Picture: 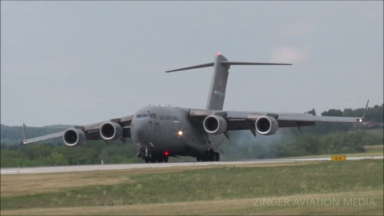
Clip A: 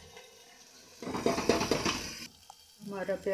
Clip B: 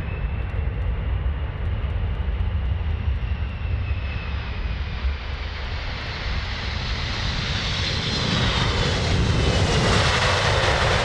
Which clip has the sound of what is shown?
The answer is B